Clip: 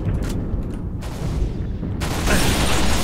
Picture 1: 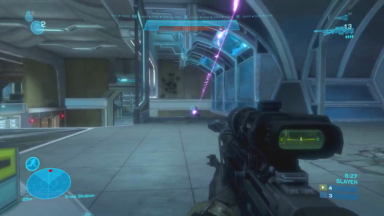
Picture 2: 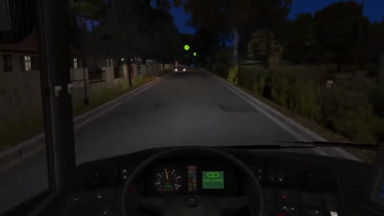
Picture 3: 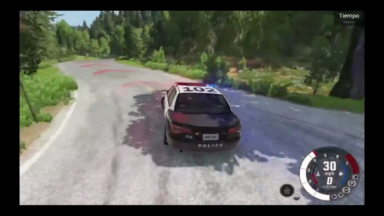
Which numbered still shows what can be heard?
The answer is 1